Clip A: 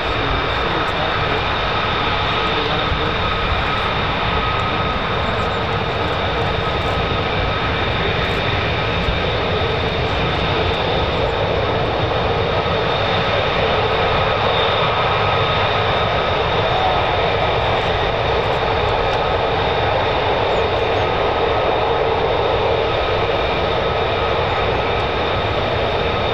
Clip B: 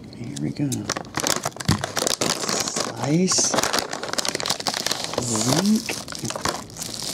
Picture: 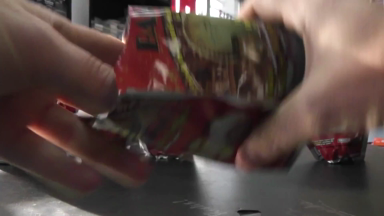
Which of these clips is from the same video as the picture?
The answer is B